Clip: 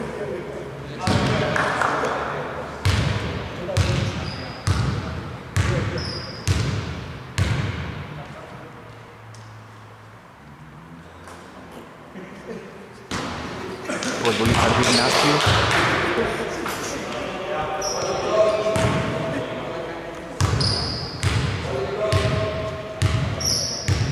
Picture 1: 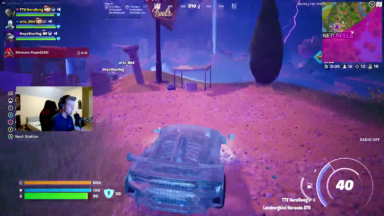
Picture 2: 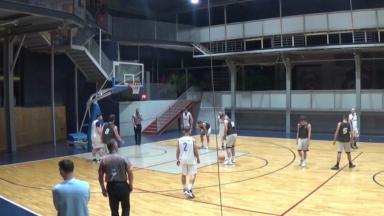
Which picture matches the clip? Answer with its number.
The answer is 2